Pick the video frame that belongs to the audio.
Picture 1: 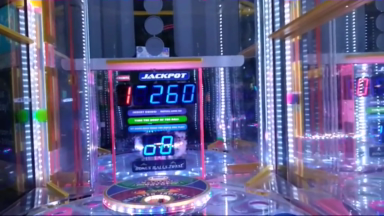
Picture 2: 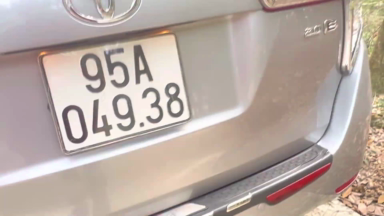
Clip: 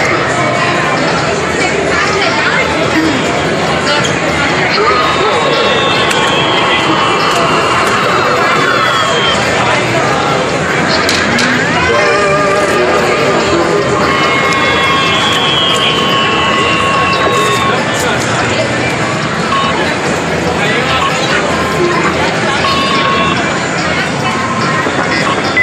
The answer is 1